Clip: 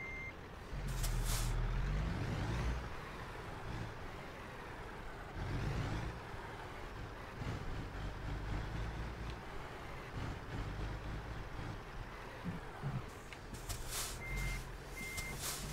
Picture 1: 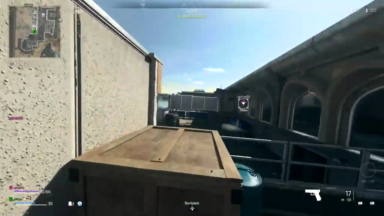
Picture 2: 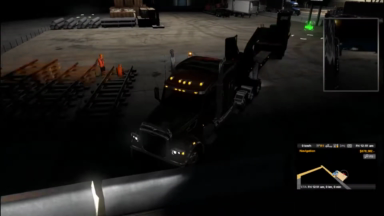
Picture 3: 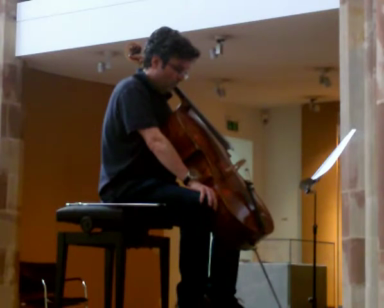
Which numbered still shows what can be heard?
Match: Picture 2